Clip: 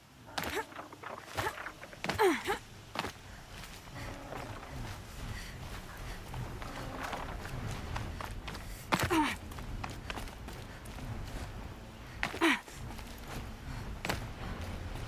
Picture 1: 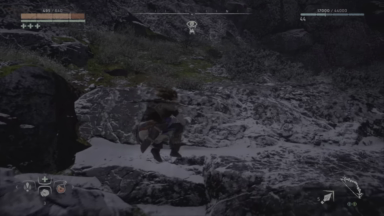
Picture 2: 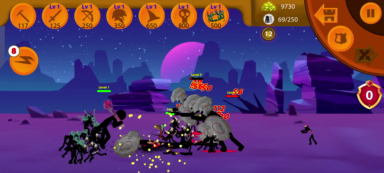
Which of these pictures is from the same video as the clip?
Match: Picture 1